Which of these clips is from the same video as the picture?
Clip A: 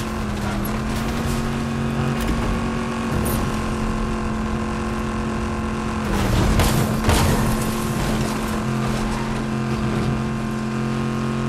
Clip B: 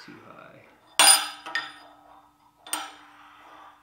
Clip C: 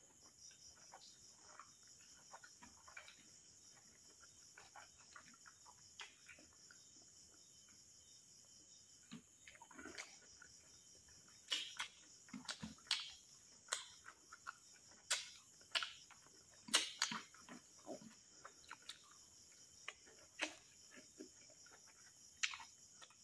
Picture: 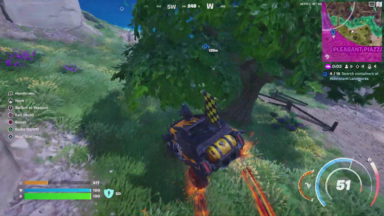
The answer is A